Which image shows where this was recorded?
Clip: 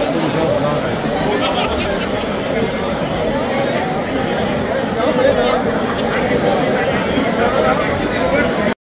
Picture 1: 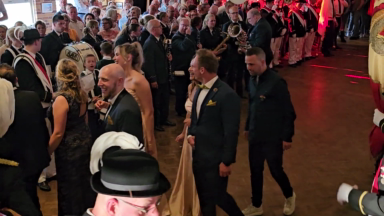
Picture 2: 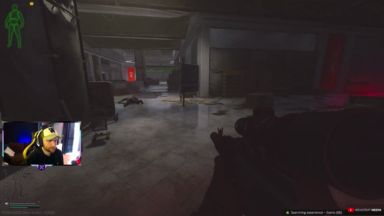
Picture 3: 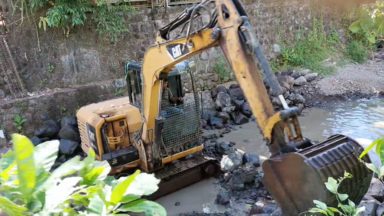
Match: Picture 1